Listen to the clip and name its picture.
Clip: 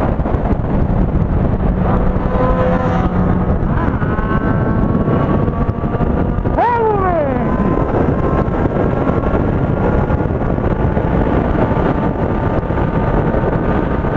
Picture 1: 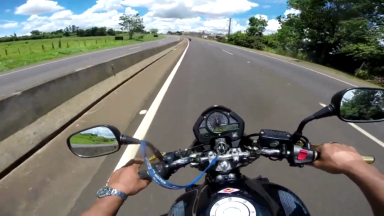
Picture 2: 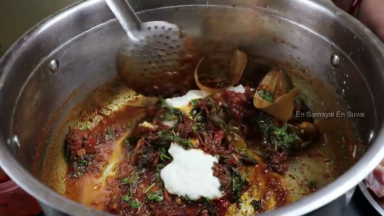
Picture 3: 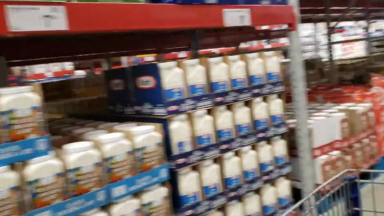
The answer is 1